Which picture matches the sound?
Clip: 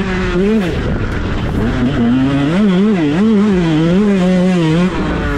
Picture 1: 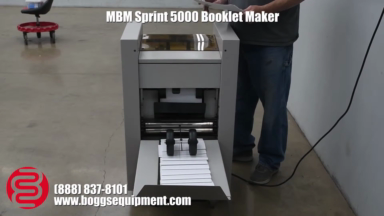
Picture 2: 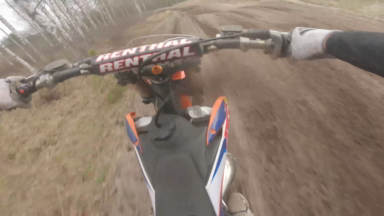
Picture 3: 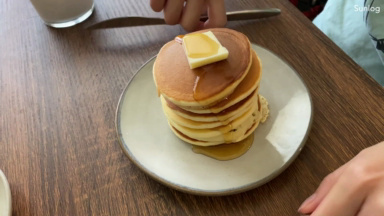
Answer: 2